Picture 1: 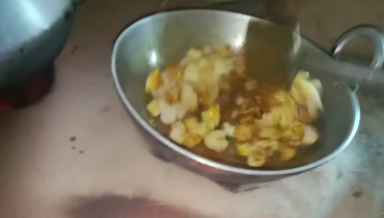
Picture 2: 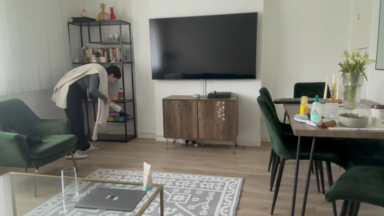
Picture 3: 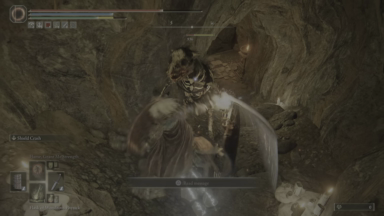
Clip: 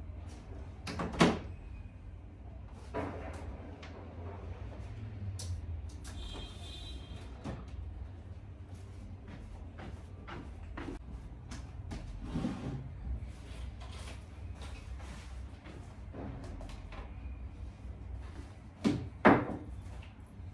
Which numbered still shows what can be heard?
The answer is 2